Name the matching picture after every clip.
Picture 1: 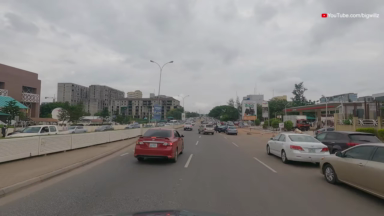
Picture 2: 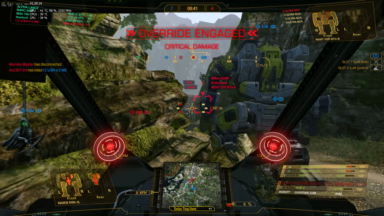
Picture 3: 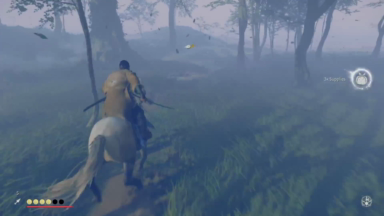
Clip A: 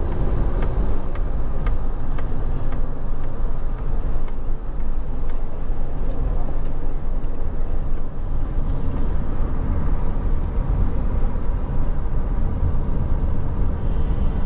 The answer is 1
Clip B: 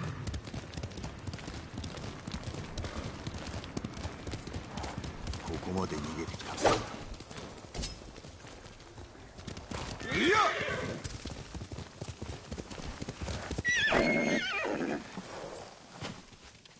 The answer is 3